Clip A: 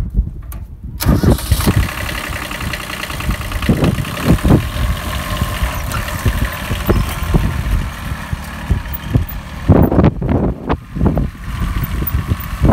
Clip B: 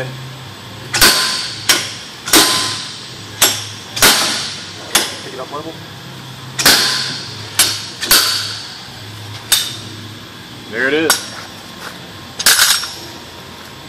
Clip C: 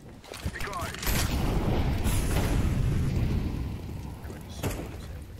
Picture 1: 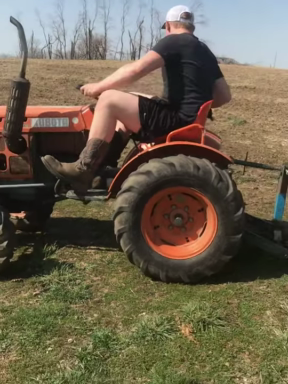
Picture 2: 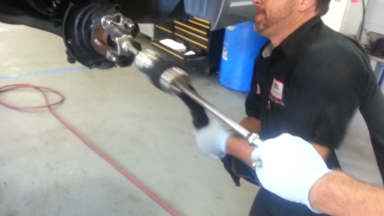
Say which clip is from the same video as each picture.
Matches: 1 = A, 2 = B